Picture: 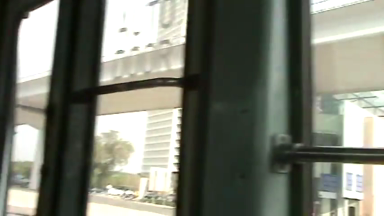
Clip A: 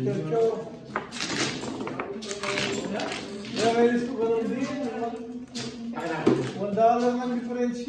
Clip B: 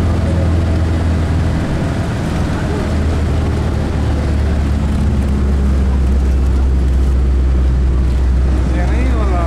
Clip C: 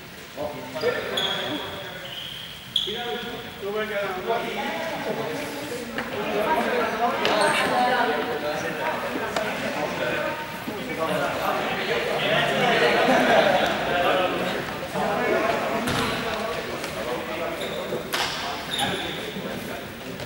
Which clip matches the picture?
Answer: B